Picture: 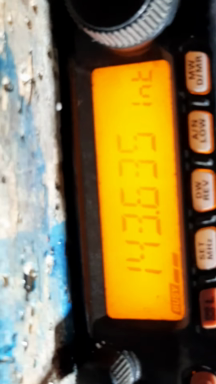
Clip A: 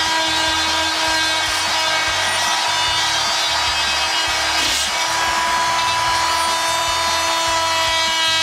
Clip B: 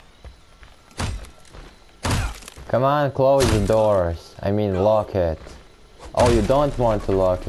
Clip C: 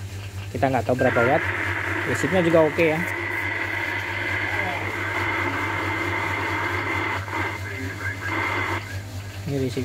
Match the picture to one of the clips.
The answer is C